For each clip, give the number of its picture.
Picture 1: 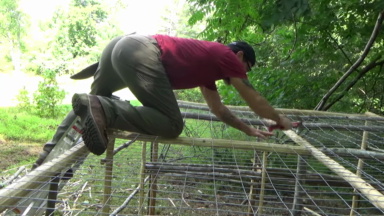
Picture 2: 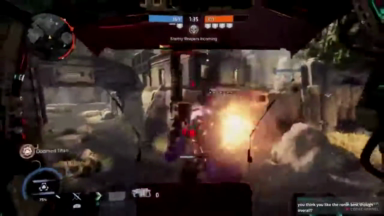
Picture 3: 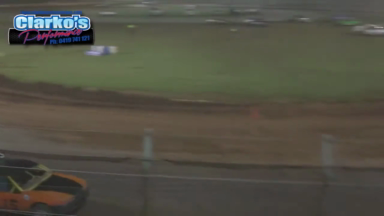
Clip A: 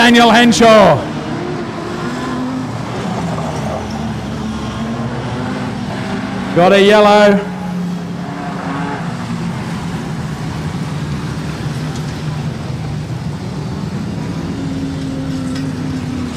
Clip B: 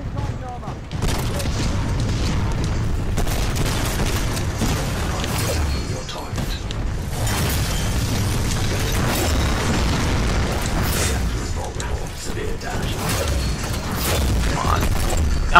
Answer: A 3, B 2